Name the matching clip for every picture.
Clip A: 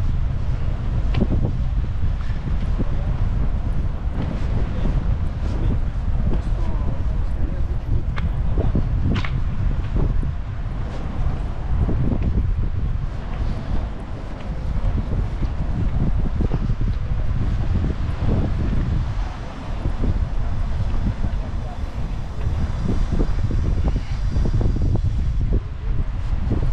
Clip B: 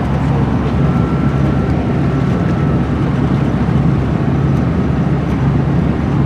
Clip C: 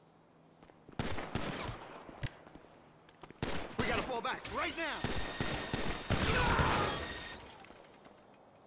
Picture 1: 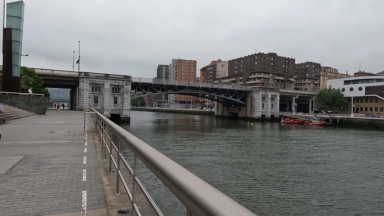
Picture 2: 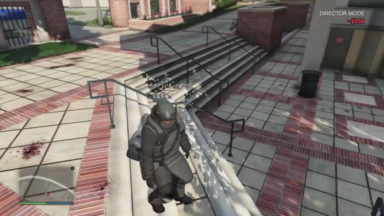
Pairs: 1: A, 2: C